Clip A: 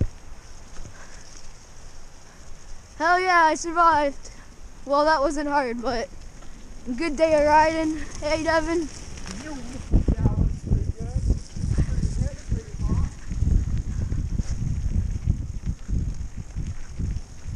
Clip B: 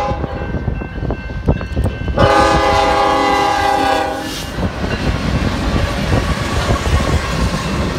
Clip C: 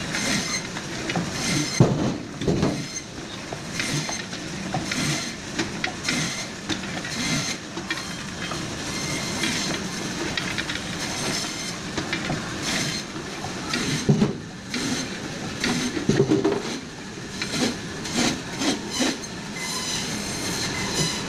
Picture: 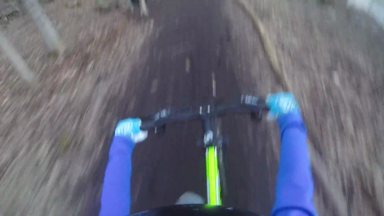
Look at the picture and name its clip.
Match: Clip A